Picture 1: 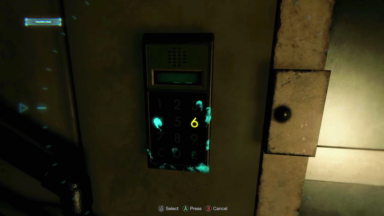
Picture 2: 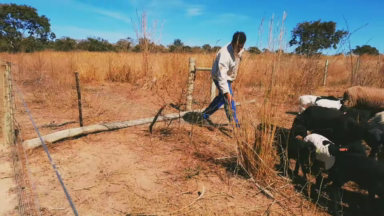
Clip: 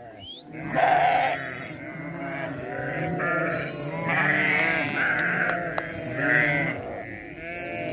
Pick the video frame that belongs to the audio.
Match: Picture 2